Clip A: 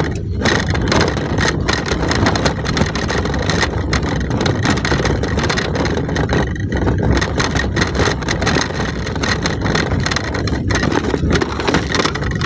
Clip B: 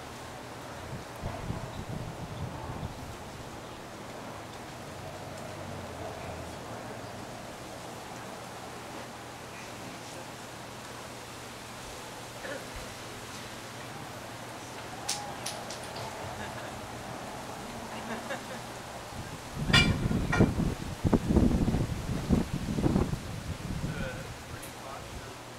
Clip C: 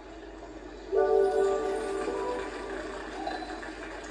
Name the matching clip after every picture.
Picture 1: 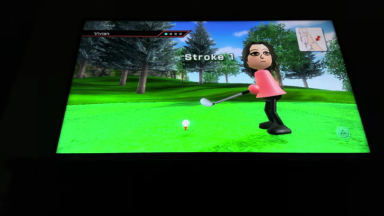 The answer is C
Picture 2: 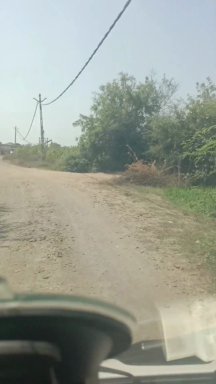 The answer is A